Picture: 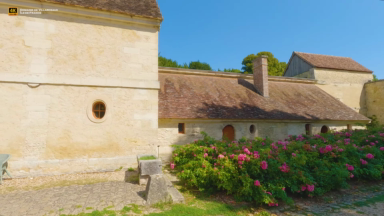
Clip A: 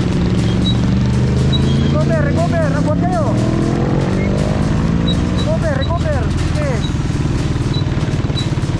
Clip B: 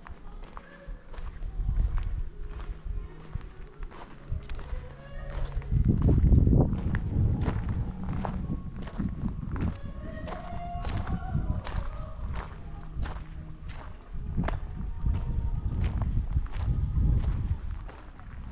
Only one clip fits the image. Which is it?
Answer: B